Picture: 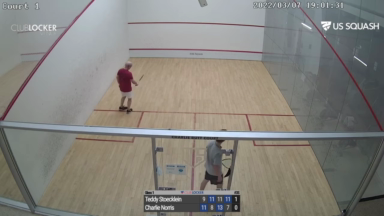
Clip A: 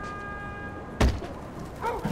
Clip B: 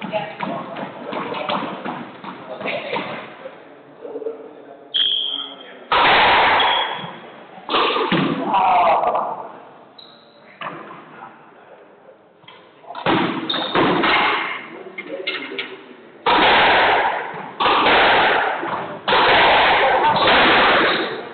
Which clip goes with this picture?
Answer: B